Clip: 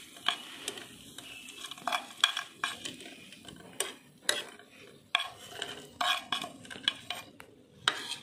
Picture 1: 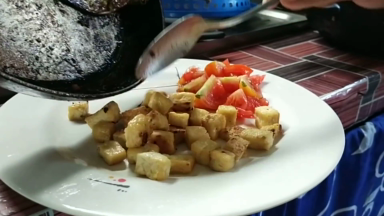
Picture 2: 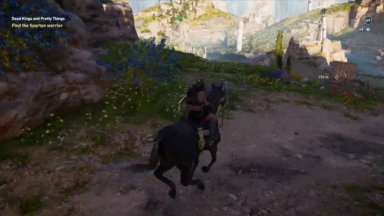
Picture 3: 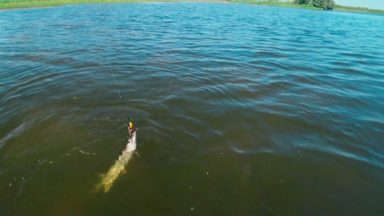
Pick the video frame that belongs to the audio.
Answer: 1